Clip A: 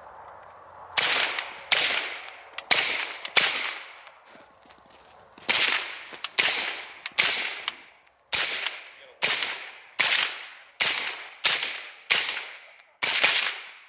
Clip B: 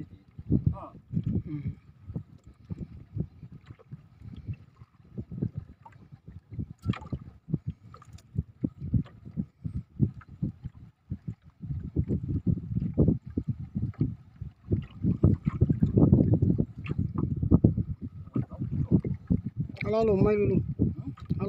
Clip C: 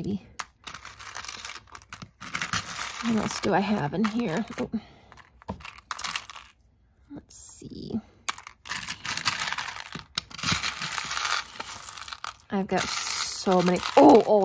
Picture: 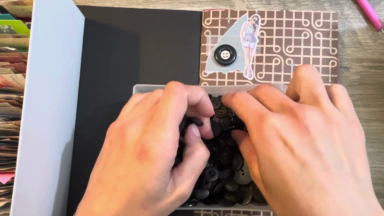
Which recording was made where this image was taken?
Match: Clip C